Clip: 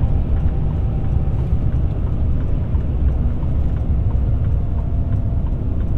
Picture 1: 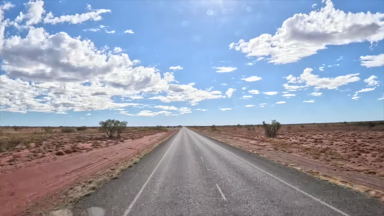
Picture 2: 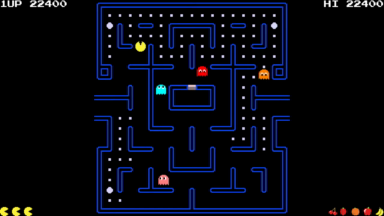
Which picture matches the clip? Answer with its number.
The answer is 1